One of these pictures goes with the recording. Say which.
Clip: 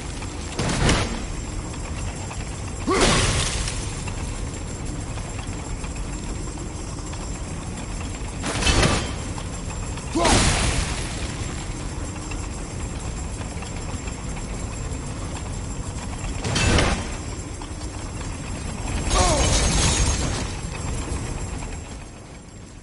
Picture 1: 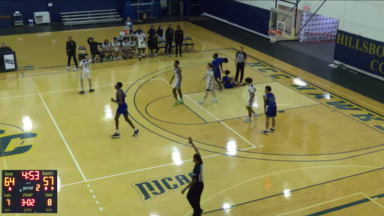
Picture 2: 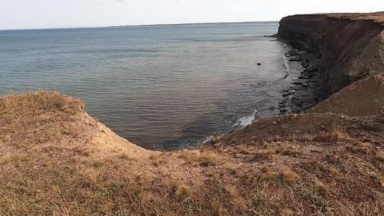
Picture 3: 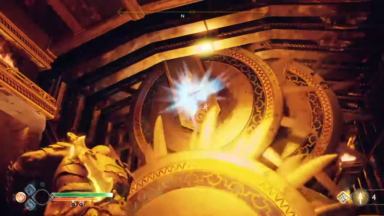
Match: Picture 3